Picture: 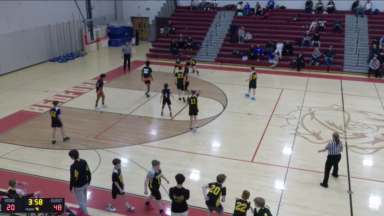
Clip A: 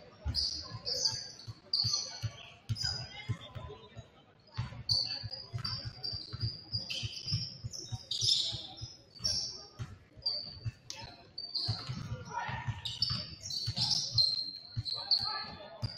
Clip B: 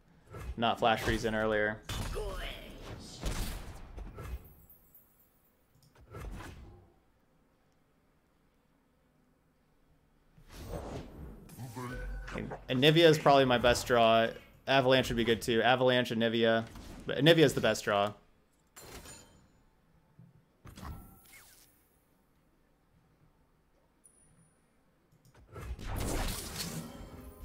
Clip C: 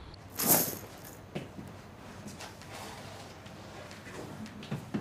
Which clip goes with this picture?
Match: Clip A